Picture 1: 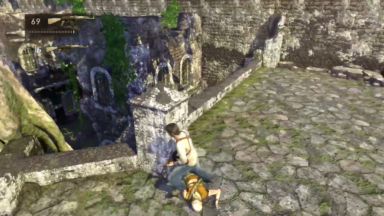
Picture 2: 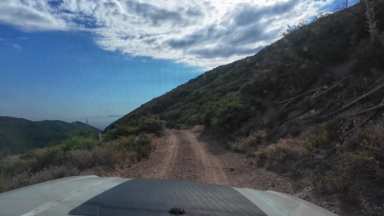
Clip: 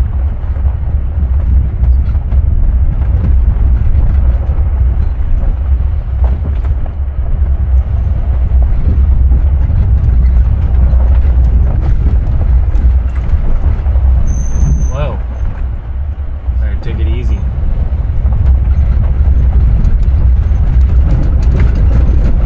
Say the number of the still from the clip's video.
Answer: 2